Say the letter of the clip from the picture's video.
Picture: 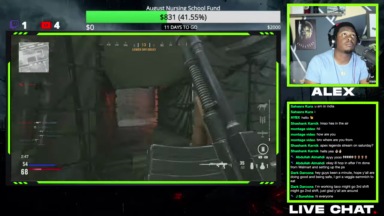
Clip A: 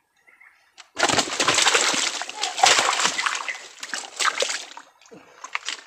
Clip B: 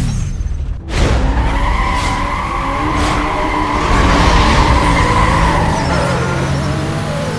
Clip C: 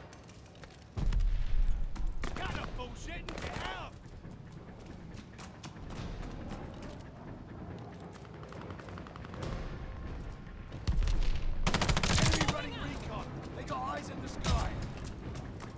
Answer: C